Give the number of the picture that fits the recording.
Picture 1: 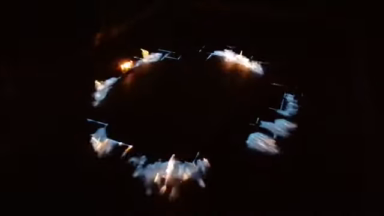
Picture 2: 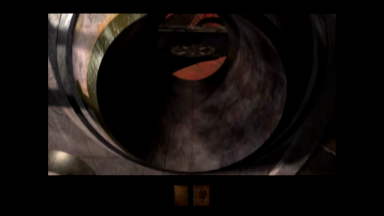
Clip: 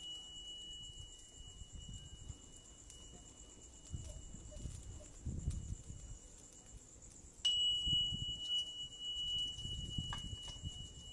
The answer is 1